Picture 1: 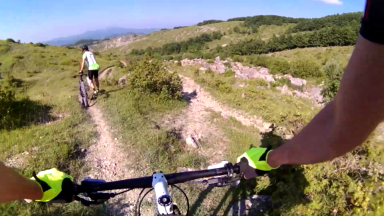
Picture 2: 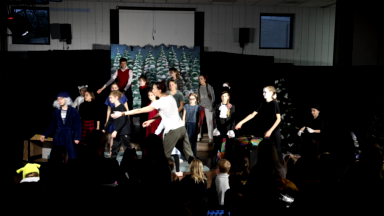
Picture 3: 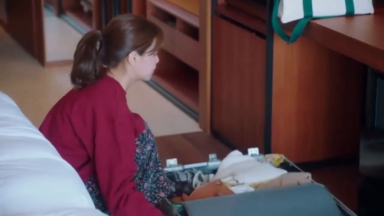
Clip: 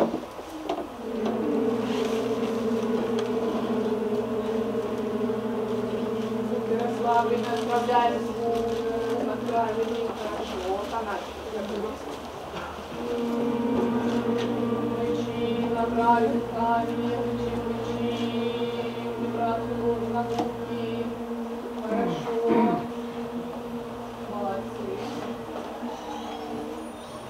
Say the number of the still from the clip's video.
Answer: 2